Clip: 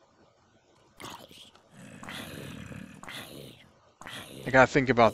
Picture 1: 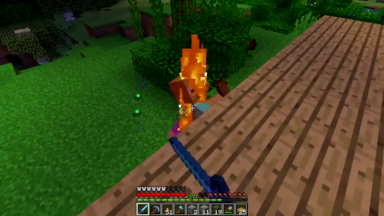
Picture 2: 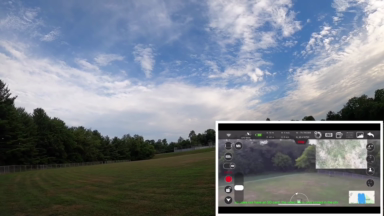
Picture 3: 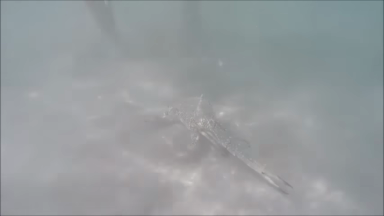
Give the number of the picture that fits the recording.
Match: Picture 1